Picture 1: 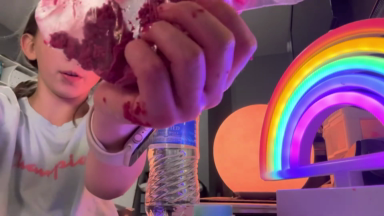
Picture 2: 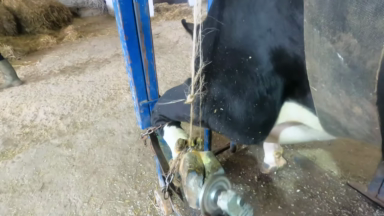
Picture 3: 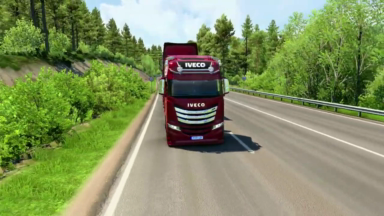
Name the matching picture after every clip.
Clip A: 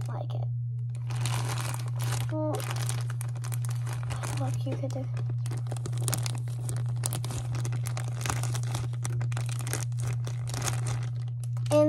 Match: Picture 1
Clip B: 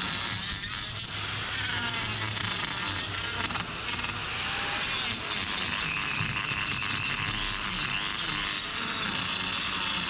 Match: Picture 2